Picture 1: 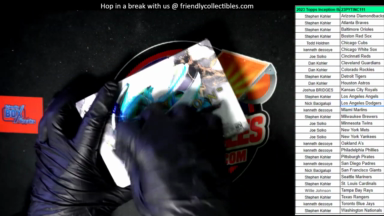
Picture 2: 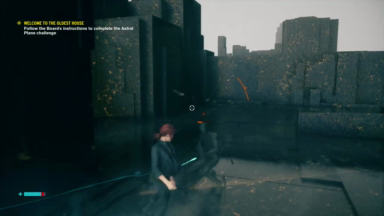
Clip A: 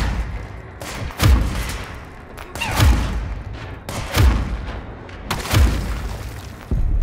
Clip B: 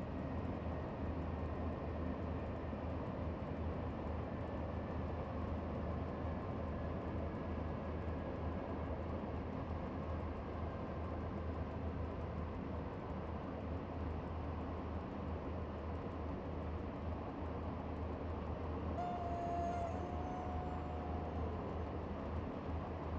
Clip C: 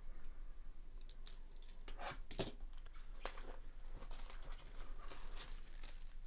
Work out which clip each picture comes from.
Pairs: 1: C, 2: A